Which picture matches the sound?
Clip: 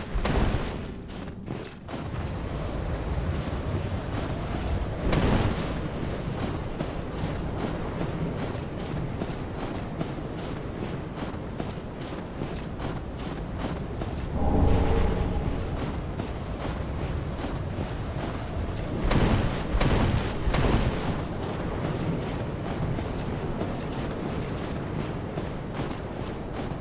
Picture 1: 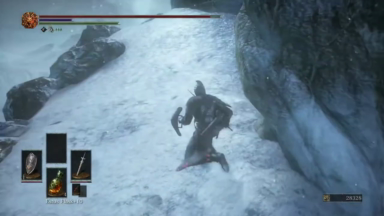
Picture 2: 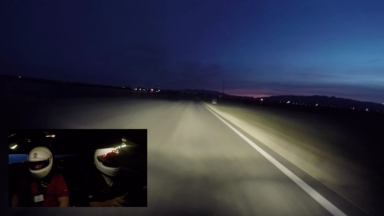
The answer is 1